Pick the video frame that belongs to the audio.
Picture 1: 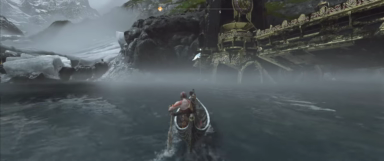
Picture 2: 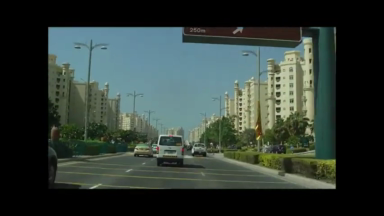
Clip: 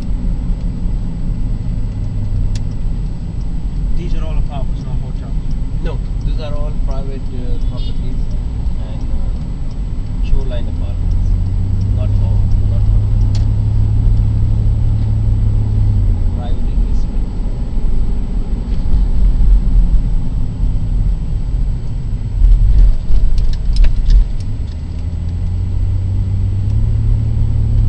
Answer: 2